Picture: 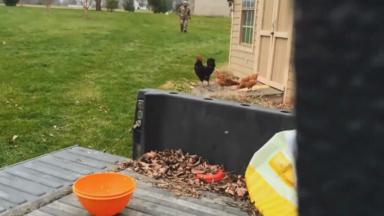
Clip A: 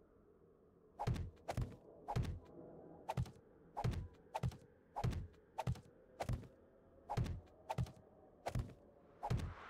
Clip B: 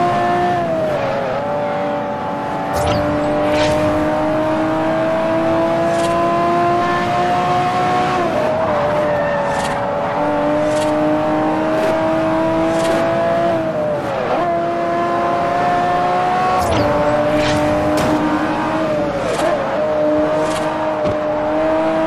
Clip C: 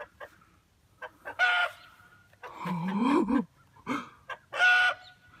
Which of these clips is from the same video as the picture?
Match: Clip C